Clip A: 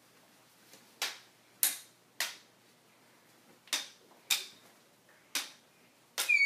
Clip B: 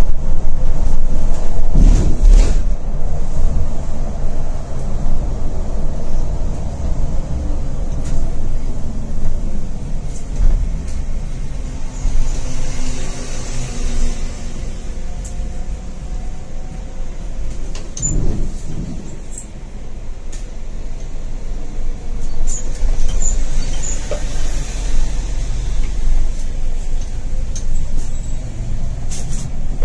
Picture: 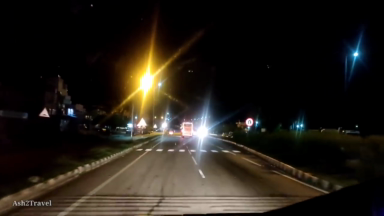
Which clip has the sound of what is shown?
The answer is B